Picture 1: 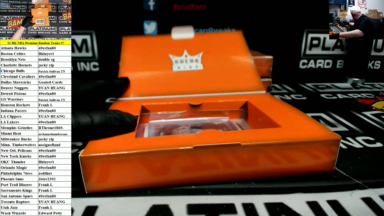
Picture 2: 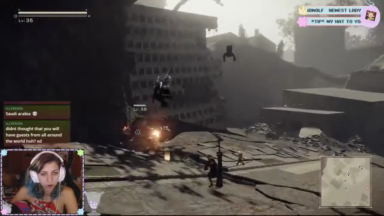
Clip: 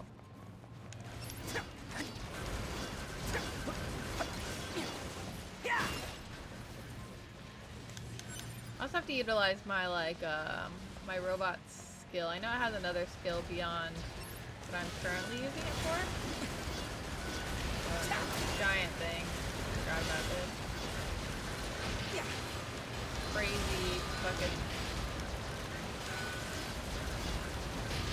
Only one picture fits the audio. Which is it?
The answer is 2